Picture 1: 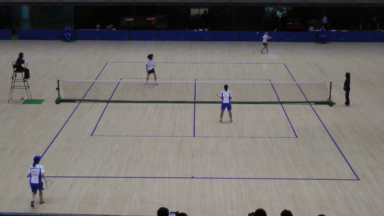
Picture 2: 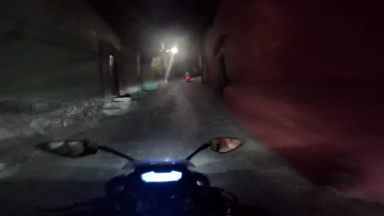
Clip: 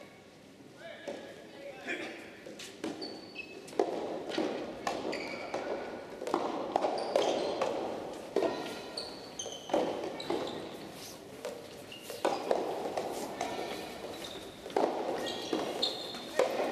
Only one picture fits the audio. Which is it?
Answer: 1